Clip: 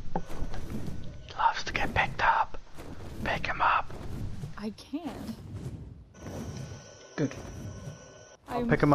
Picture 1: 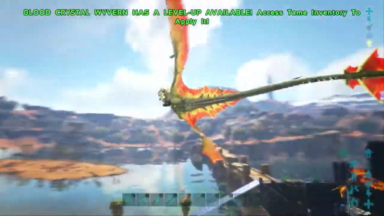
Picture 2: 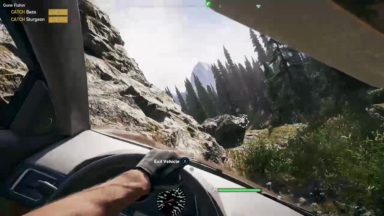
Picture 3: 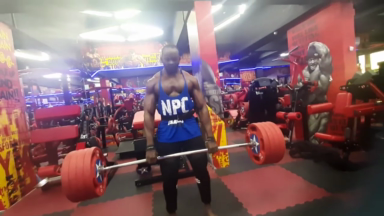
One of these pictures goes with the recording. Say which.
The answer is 1